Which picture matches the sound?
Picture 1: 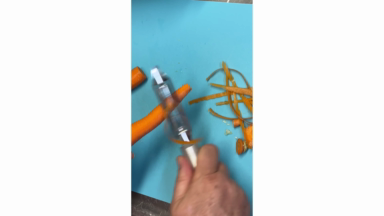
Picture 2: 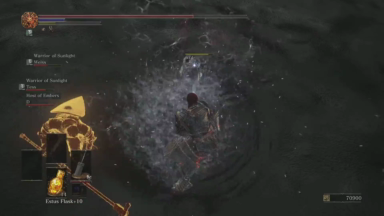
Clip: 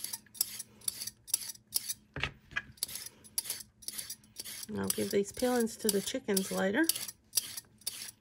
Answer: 1